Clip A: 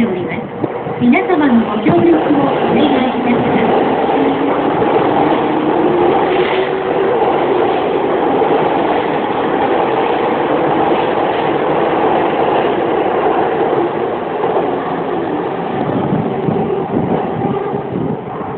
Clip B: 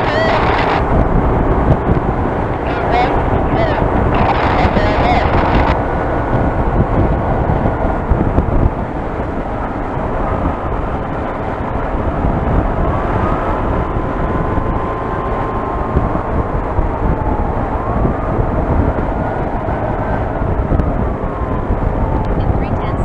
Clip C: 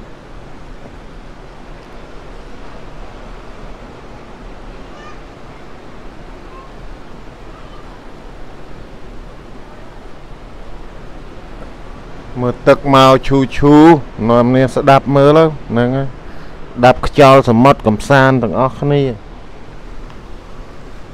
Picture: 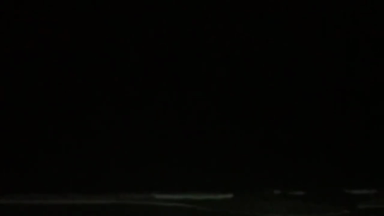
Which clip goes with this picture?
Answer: C